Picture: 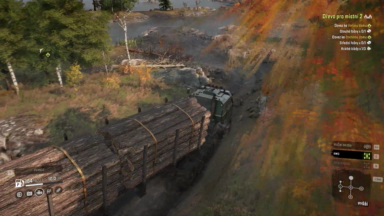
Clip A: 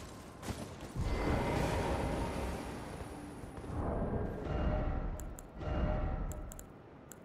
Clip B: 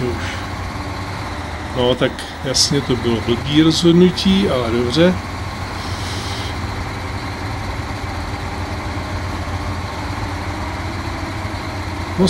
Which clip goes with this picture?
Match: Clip B